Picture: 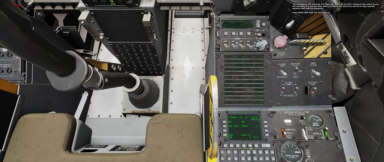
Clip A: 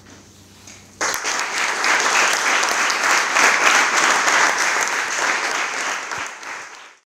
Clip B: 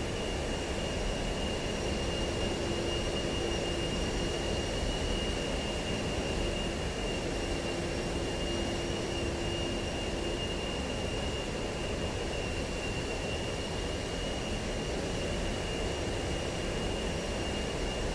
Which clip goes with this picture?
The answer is B